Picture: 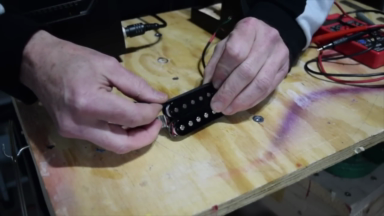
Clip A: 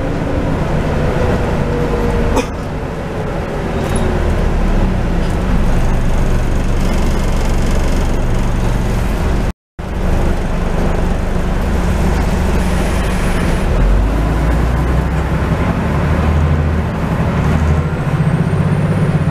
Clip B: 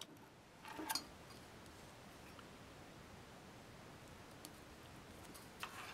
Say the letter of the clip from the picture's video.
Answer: B